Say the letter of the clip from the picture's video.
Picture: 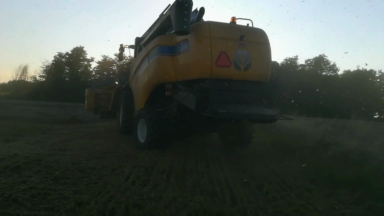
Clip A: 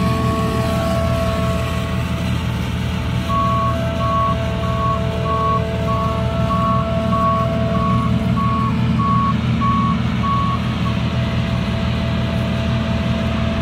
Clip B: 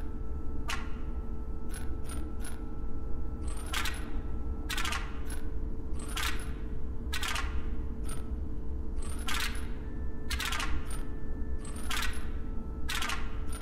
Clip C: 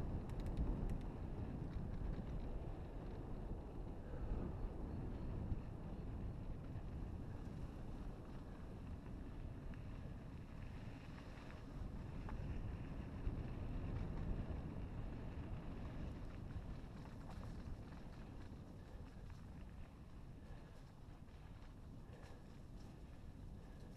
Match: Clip A